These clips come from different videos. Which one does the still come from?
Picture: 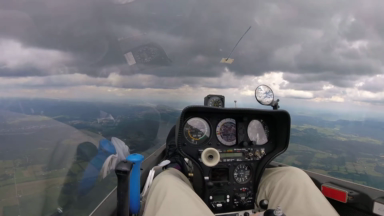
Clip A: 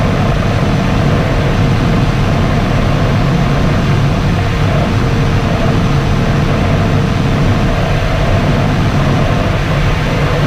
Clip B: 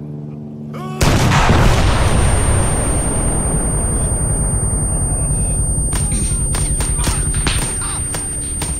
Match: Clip A